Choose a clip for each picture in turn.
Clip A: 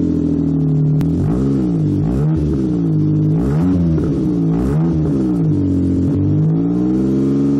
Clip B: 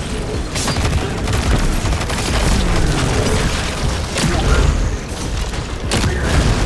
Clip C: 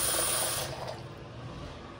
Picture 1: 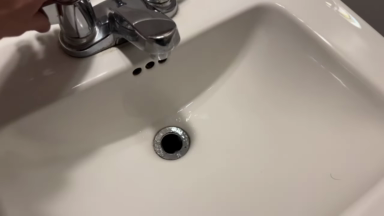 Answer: C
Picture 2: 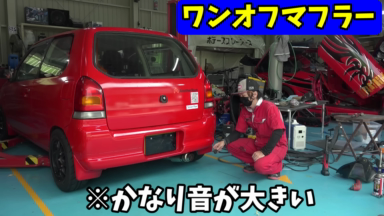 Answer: A